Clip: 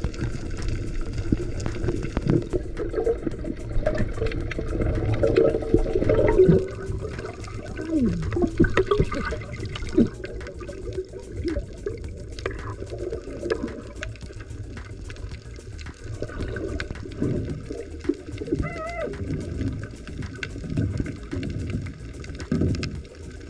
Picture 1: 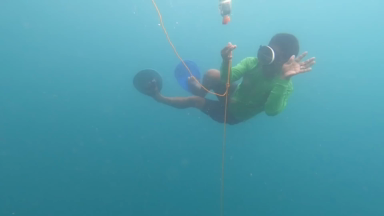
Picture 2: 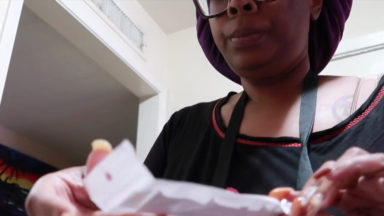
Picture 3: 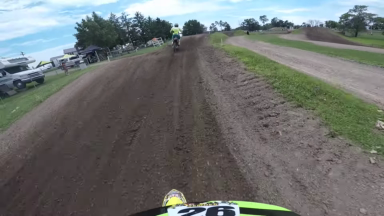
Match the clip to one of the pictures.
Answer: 1